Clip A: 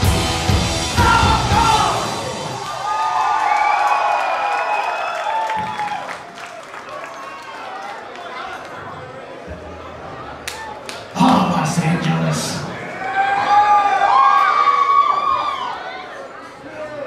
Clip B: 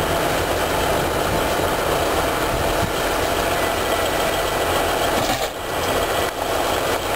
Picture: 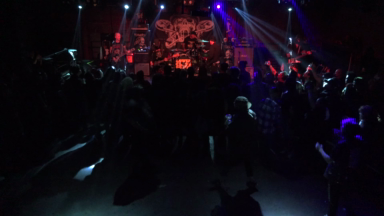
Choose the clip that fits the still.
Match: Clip A